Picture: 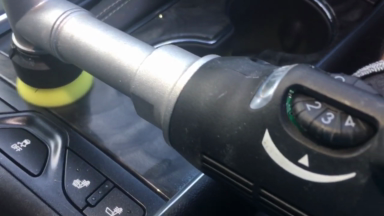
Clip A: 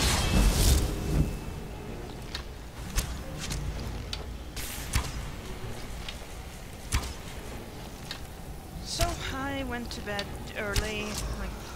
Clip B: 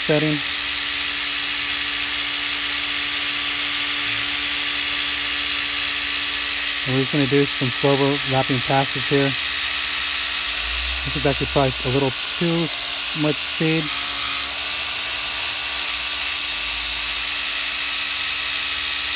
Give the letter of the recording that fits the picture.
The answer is B